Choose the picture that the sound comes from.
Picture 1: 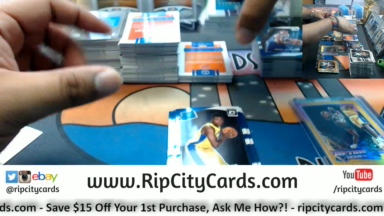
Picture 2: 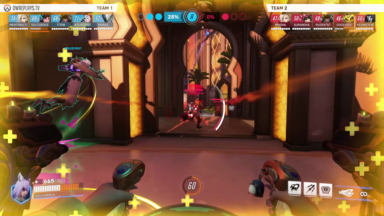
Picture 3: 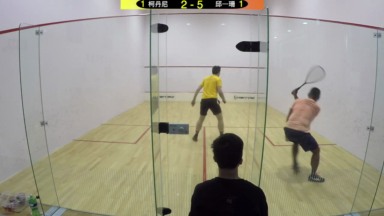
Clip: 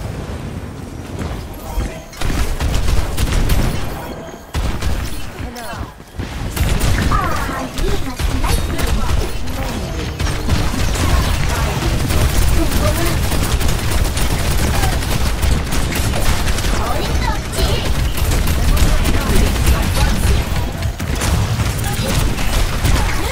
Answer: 2